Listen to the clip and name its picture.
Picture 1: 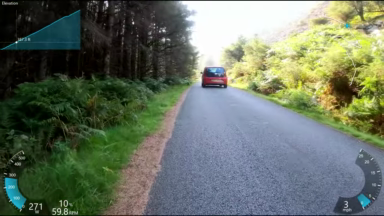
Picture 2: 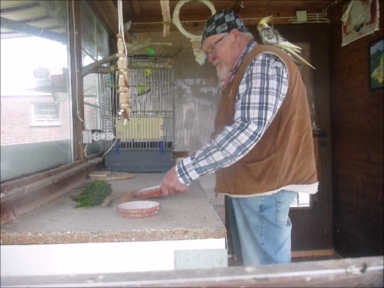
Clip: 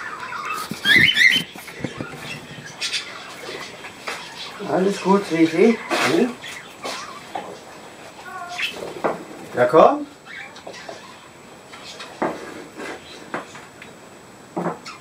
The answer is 2